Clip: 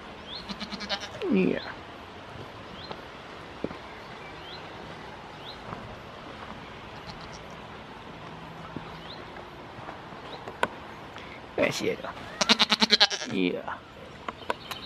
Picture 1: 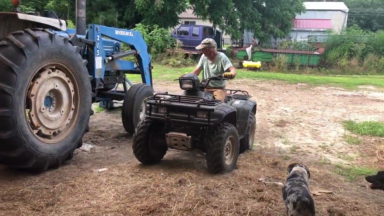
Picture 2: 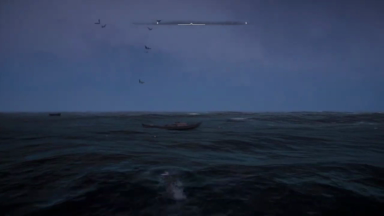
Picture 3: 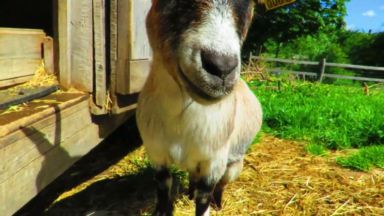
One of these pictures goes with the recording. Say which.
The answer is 3